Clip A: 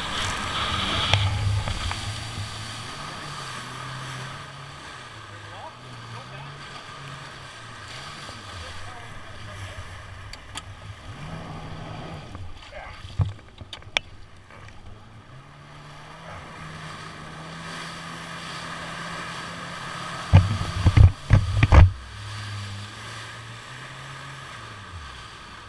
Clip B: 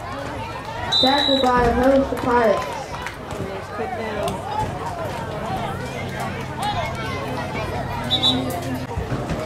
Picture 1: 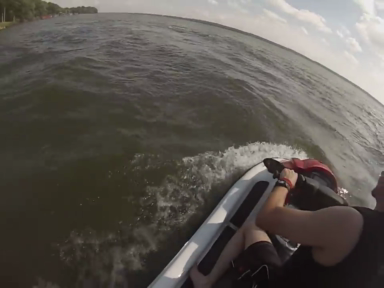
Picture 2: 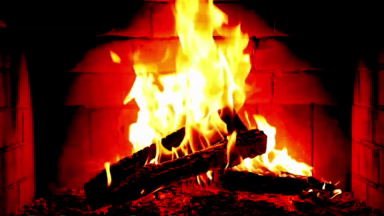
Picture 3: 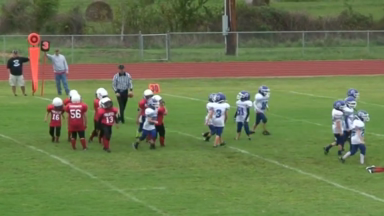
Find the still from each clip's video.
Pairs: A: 1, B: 3